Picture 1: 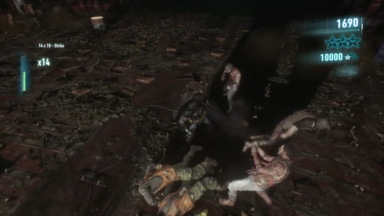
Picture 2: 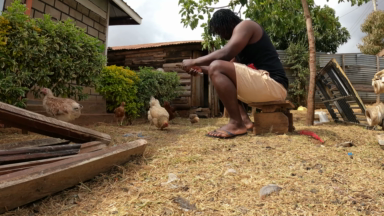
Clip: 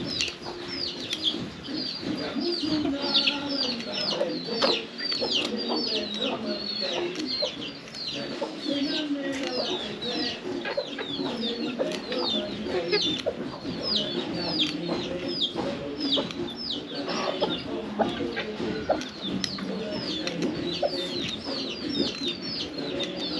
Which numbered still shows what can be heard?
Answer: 2